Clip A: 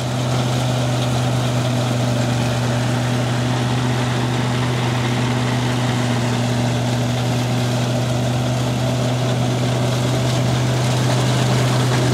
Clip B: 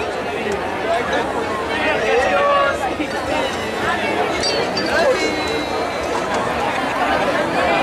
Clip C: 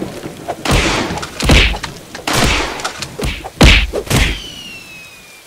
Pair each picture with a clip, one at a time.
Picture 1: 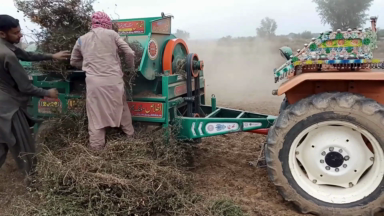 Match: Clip A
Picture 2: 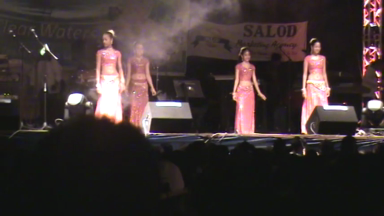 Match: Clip B